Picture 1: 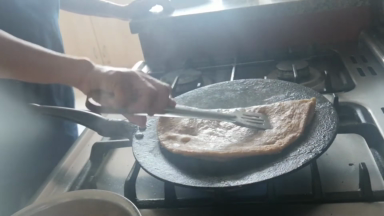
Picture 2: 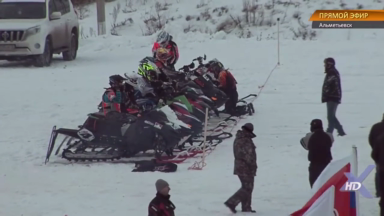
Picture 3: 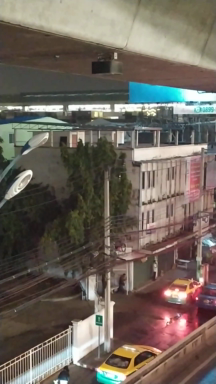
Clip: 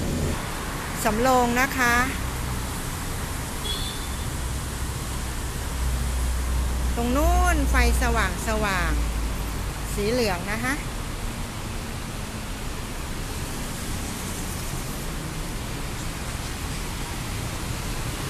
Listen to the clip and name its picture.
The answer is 3